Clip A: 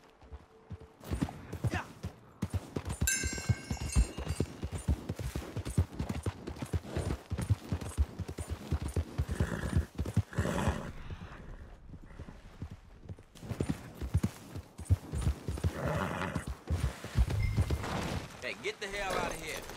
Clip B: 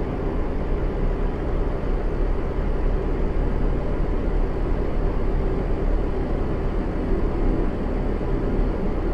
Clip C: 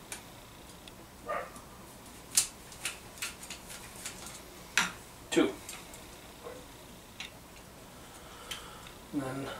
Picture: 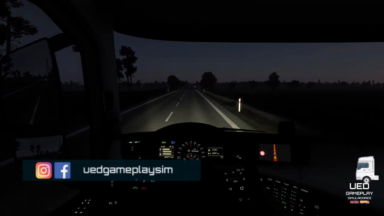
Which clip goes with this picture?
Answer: B